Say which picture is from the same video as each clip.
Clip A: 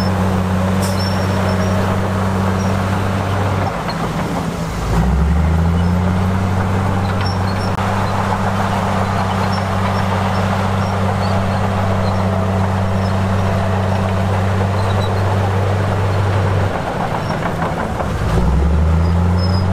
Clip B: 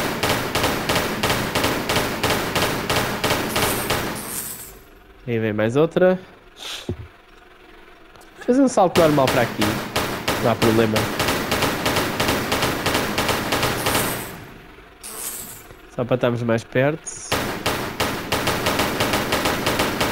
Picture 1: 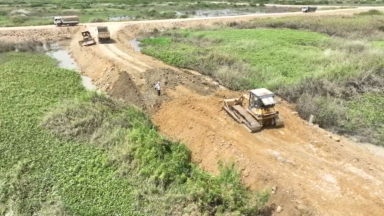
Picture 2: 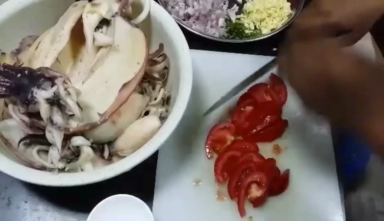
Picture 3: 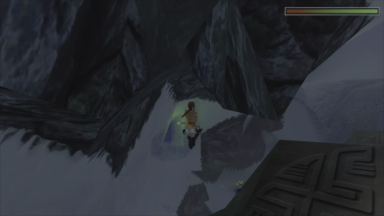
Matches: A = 1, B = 3